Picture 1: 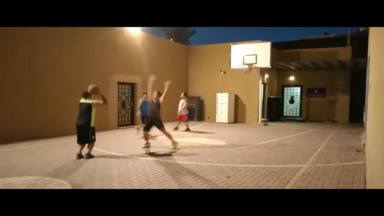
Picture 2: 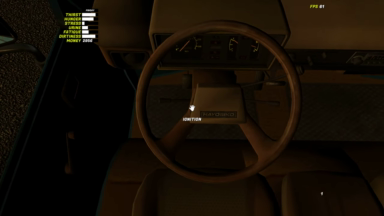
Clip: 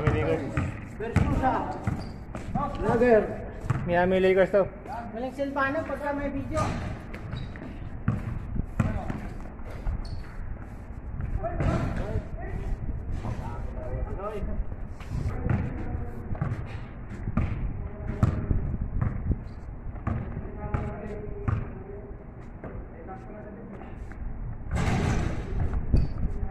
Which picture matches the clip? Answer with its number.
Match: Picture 1